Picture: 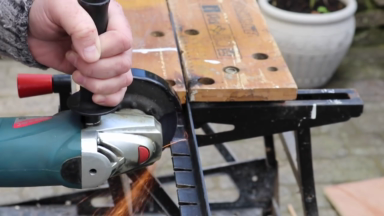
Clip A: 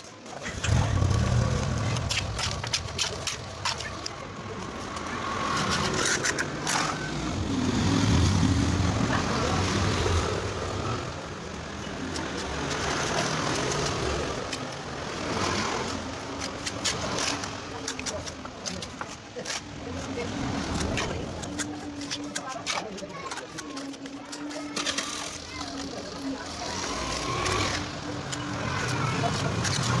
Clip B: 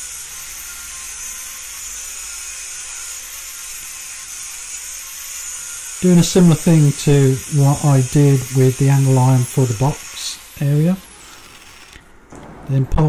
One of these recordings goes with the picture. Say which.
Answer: B